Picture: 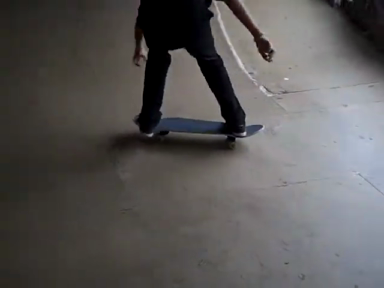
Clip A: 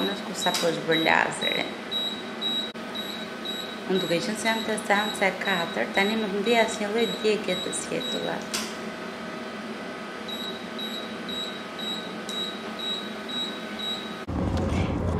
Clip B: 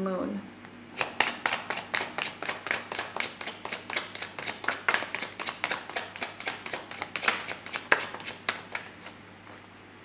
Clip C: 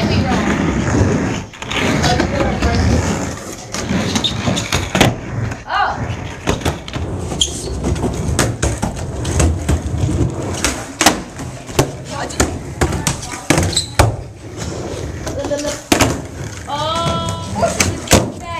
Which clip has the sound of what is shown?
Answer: C